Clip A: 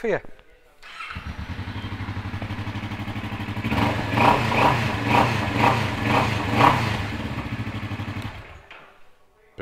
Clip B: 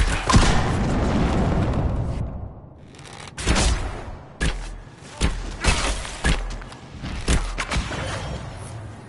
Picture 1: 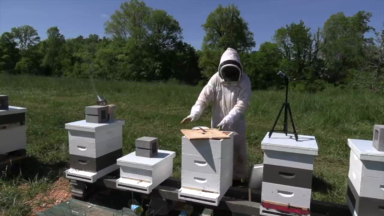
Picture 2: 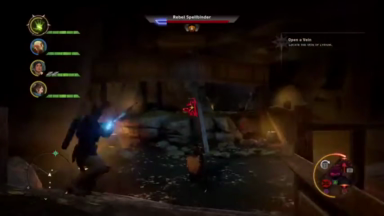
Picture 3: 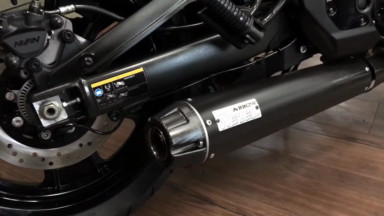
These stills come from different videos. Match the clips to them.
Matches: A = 3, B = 2